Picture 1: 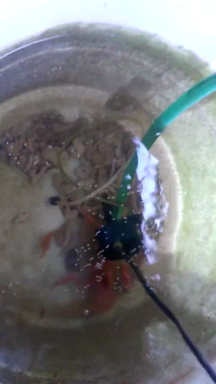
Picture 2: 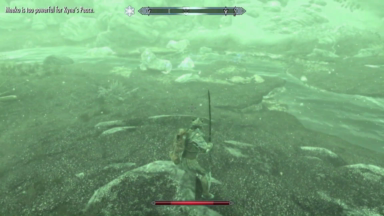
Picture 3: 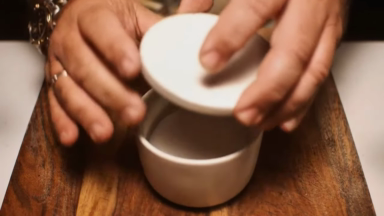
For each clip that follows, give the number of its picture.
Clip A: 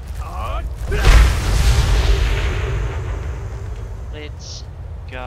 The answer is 2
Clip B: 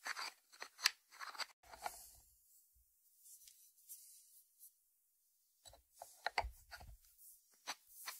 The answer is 3